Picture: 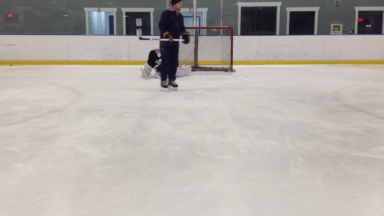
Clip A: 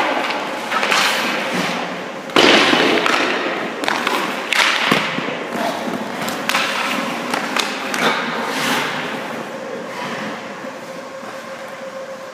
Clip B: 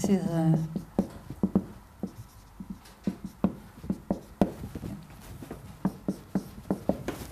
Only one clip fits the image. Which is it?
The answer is A